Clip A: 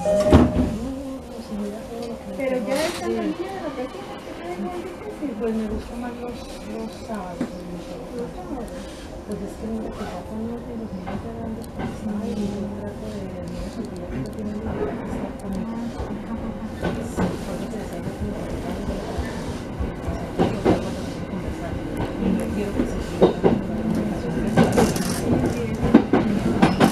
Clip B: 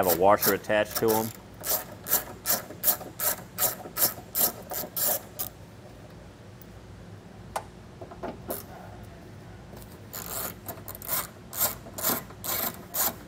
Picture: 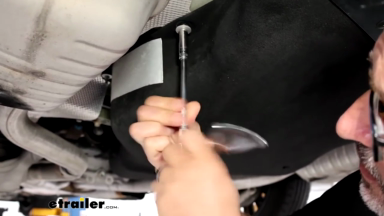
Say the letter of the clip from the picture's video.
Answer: B